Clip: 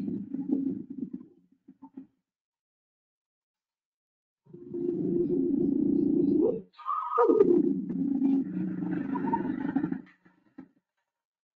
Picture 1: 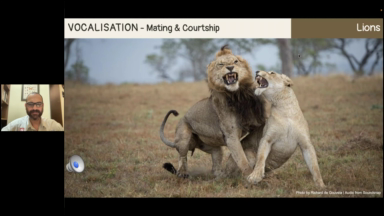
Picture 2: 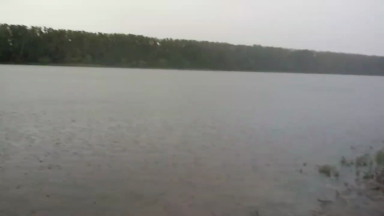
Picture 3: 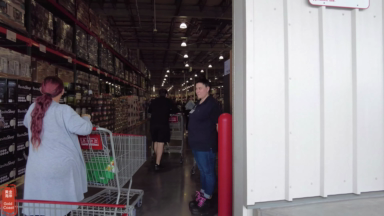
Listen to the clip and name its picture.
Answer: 1